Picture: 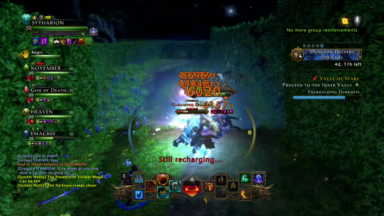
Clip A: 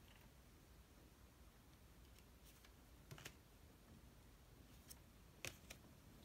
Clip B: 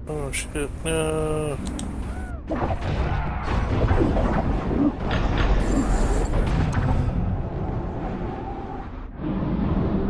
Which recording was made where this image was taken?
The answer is B